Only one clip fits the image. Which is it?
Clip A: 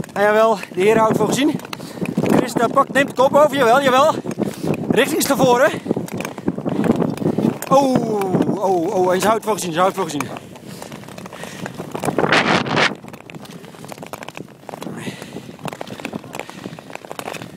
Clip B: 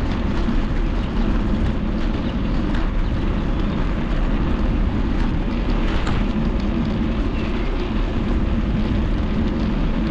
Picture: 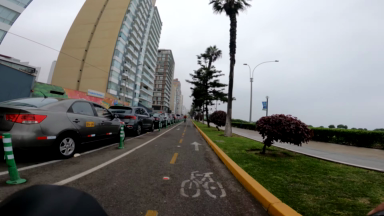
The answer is B